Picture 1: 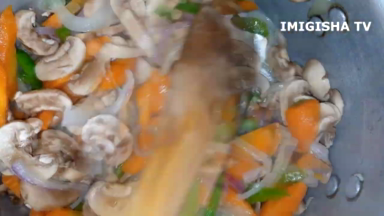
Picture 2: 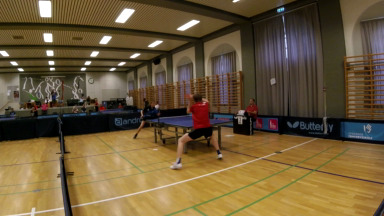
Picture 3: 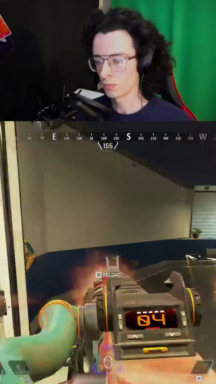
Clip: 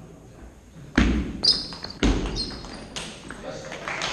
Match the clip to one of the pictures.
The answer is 2